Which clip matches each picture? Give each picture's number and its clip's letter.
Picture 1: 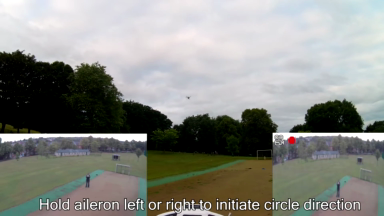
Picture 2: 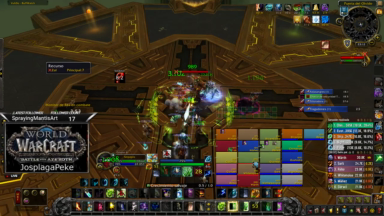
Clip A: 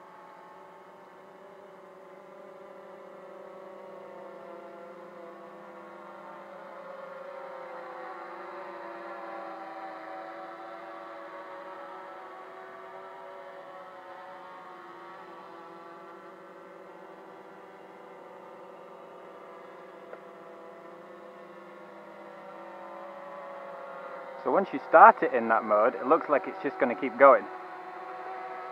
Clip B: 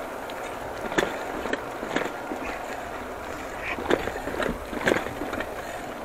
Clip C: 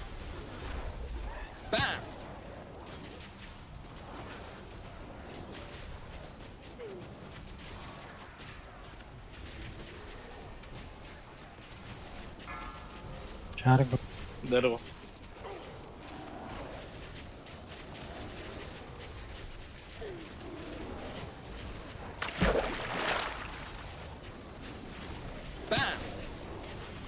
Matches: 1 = A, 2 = C